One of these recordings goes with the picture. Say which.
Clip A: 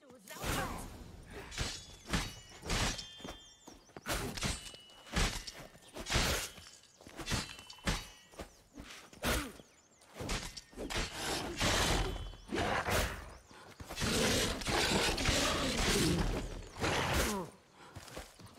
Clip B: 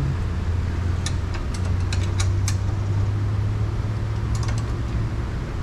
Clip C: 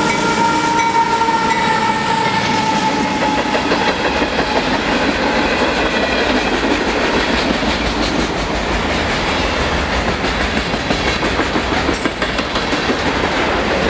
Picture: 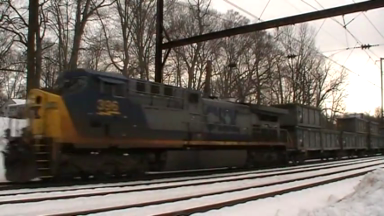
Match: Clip C